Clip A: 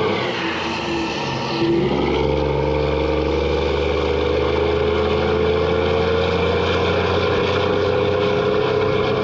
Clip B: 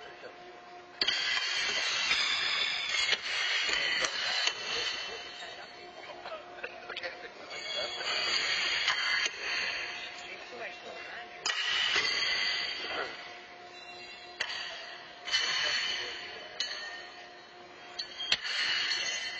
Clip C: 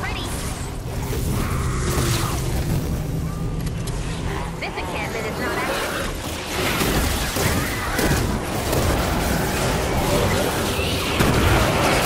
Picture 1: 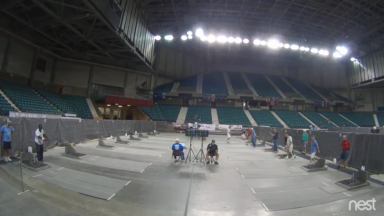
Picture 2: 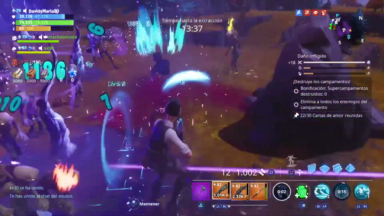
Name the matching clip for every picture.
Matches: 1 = B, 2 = C